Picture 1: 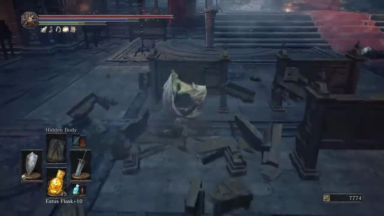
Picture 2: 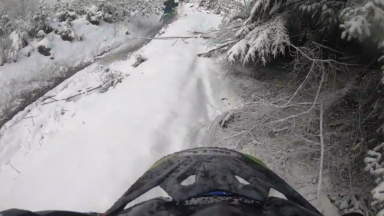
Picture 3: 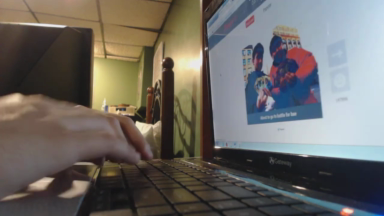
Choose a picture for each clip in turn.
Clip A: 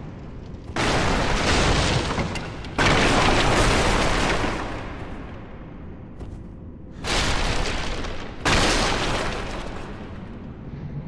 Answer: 1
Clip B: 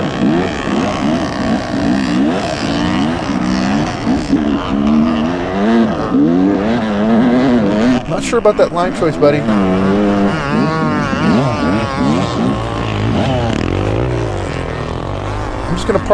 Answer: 2